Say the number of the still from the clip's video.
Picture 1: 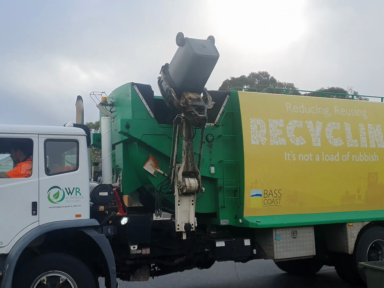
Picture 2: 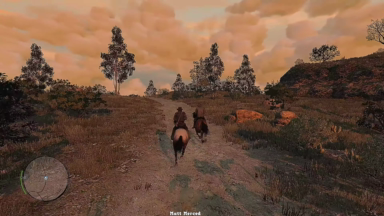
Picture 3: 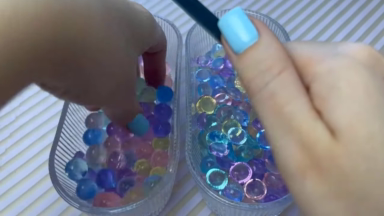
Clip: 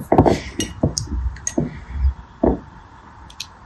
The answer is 3